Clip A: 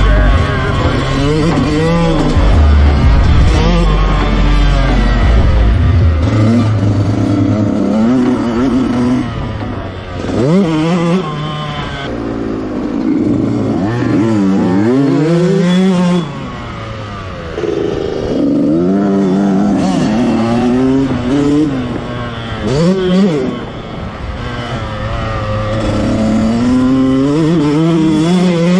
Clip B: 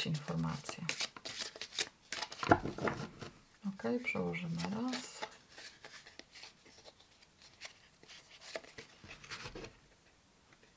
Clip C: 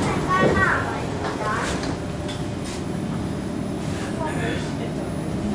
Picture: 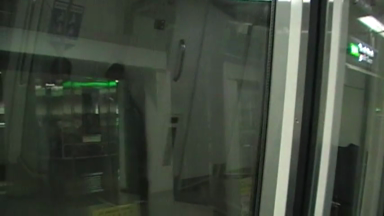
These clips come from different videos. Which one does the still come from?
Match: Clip C